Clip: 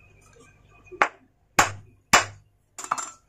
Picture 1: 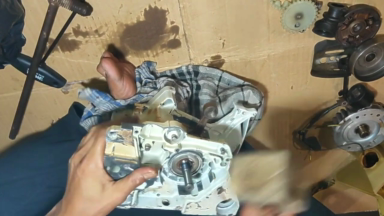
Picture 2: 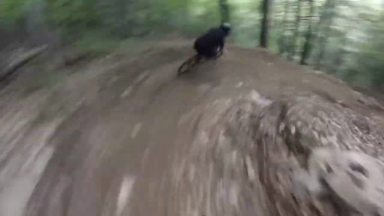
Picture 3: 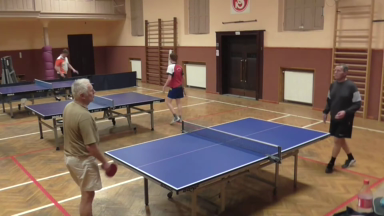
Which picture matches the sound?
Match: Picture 1